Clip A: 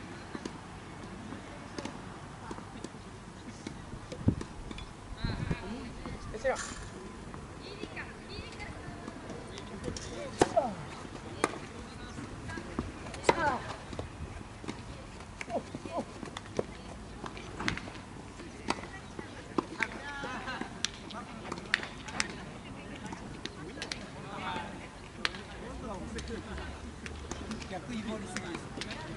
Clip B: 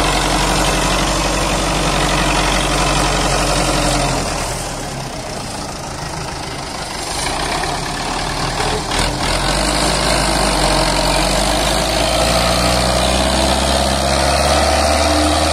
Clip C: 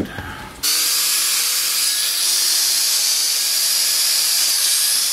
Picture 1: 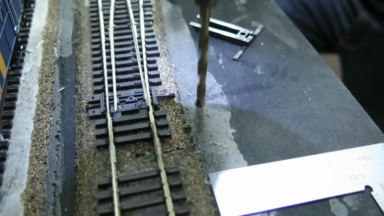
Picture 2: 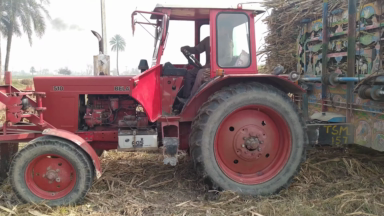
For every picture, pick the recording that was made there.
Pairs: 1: C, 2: B